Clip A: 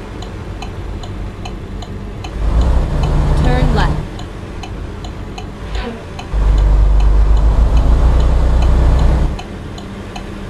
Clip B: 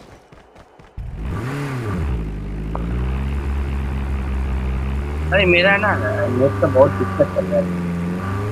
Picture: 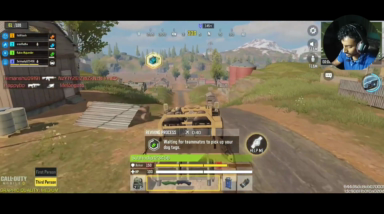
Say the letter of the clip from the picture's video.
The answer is B